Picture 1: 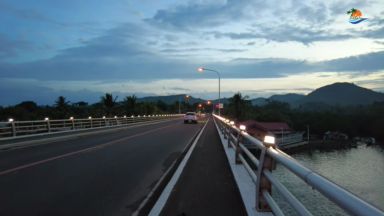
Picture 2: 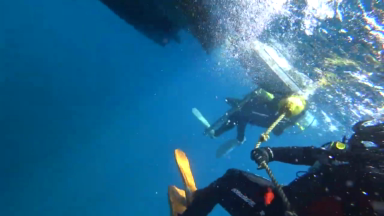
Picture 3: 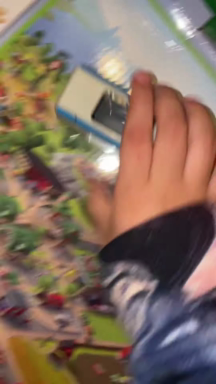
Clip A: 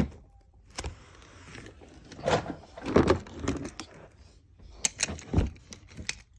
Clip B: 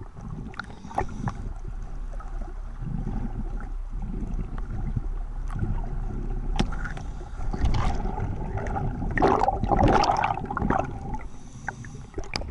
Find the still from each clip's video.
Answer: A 3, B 2